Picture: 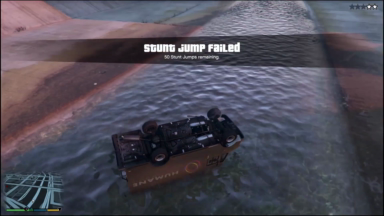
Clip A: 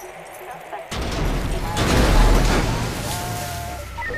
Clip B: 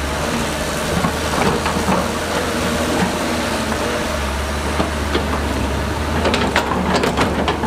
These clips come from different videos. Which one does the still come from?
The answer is A